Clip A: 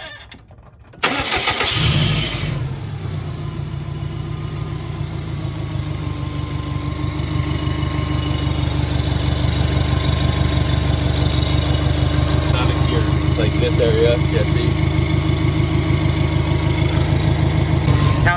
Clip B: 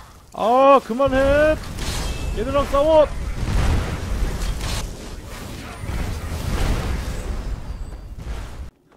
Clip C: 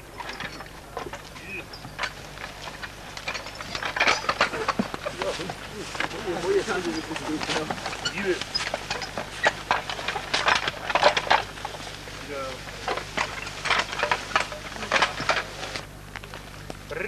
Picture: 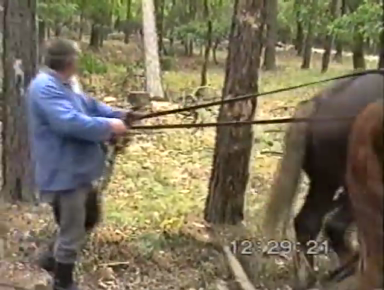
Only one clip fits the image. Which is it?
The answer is C